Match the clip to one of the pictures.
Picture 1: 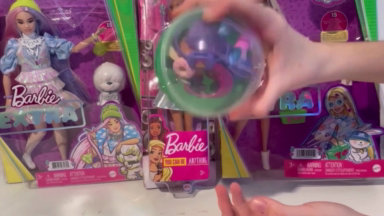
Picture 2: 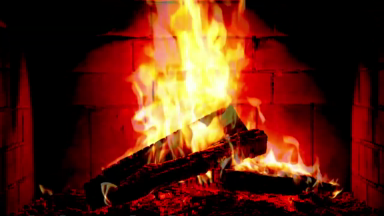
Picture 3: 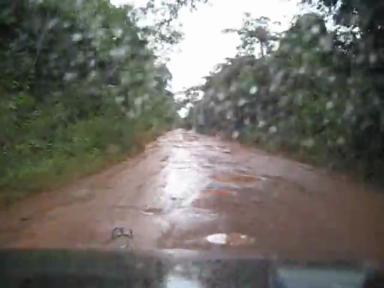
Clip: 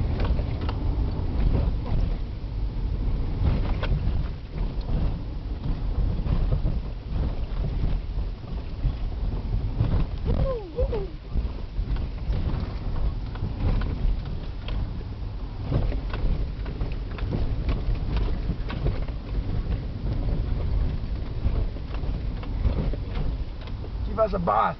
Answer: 3